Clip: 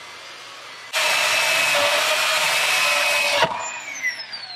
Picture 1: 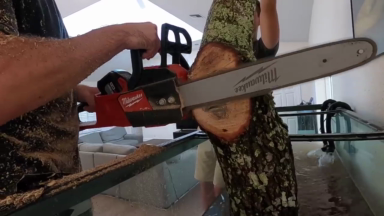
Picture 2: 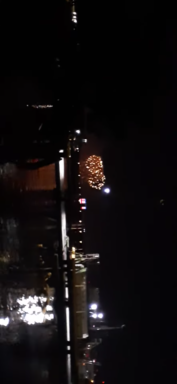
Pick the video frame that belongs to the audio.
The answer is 1